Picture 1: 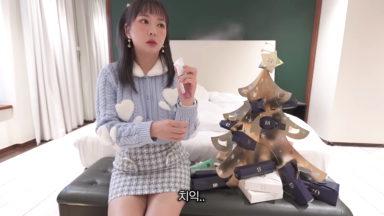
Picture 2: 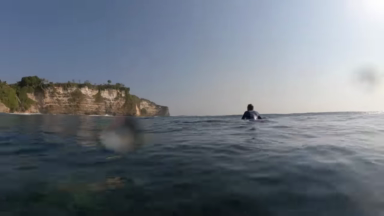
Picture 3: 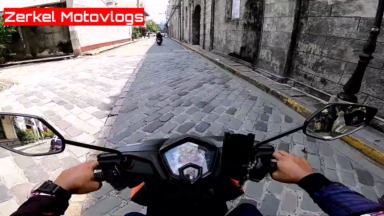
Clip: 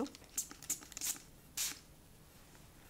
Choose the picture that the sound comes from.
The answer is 1